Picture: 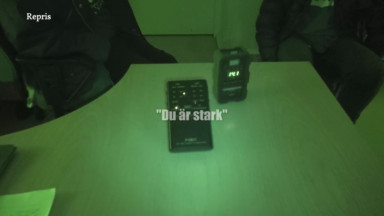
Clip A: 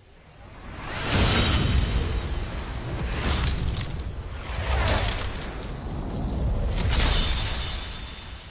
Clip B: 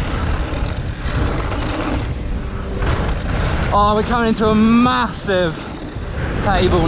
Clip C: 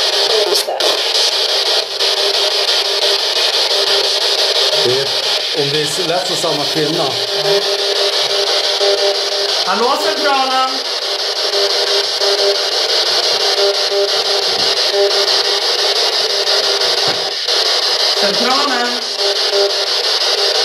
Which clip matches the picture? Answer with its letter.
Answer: C